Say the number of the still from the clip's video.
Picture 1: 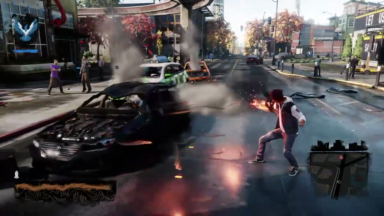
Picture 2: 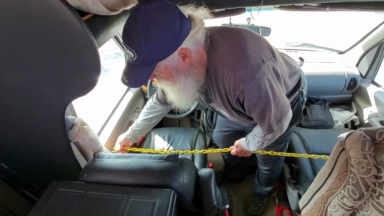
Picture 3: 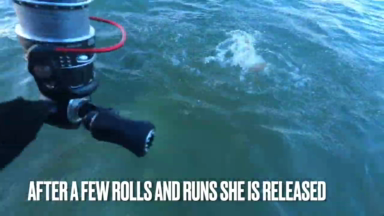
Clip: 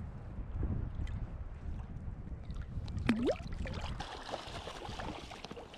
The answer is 3